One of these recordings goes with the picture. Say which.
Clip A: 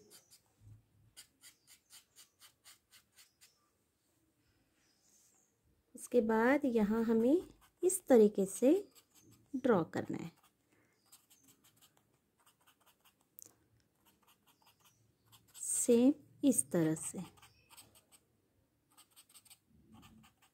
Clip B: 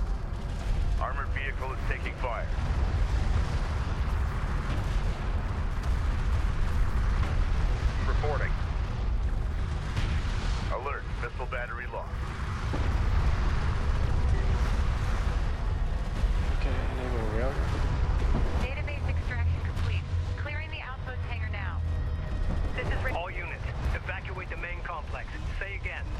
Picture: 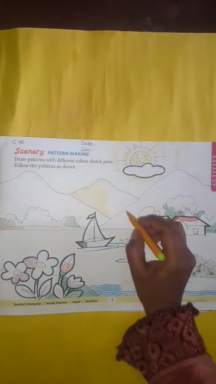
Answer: A